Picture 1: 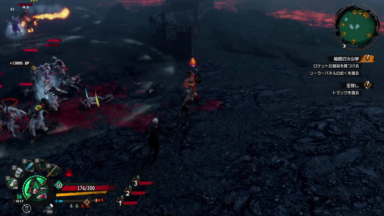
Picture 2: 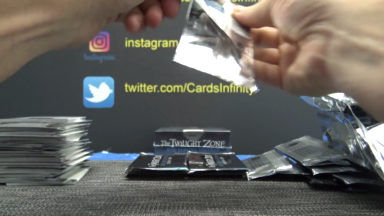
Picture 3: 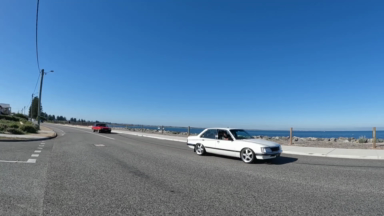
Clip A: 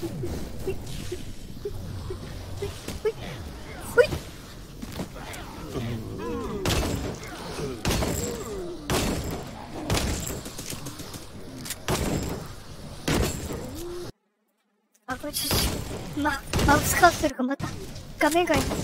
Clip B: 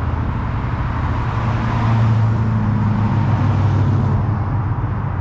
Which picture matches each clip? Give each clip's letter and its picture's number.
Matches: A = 1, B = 3